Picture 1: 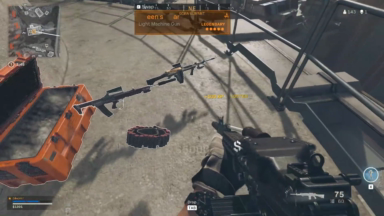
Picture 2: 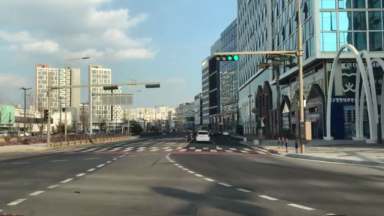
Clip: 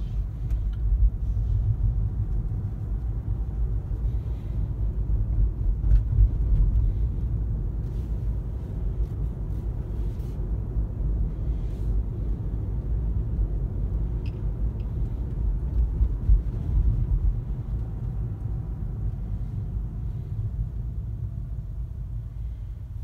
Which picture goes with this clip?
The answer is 2